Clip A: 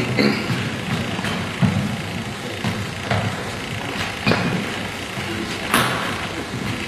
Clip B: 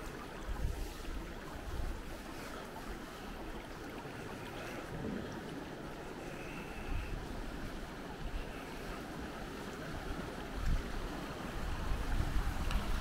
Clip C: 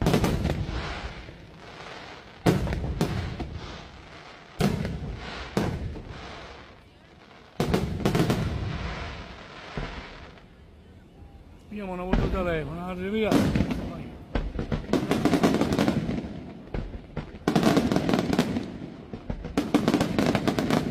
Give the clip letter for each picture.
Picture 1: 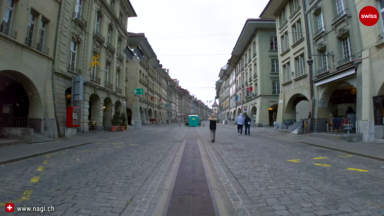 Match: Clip B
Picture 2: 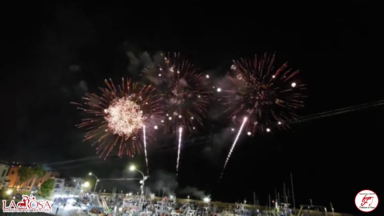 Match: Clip C